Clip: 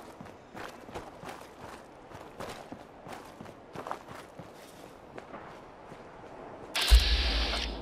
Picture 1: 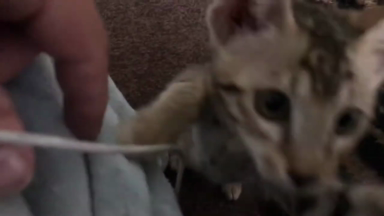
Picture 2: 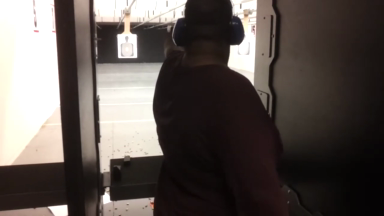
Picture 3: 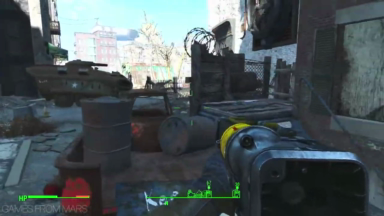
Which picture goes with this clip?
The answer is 3